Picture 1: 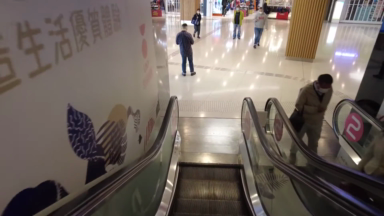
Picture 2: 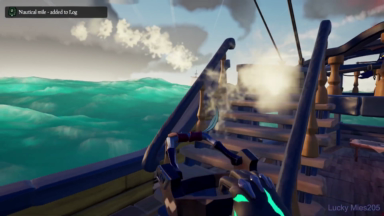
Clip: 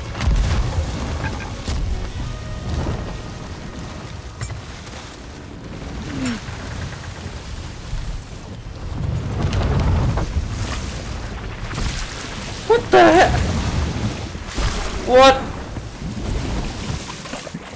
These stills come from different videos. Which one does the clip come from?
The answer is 2